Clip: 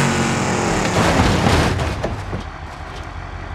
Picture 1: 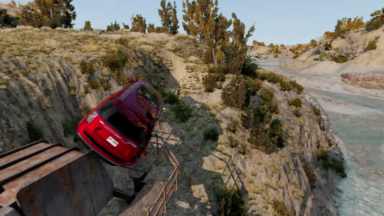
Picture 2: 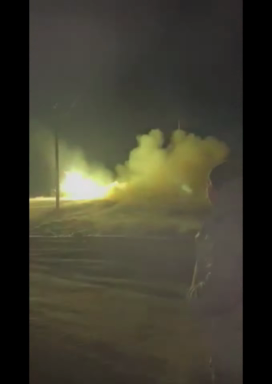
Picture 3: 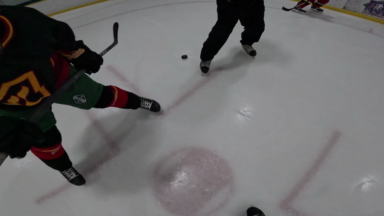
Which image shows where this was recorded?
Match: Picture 1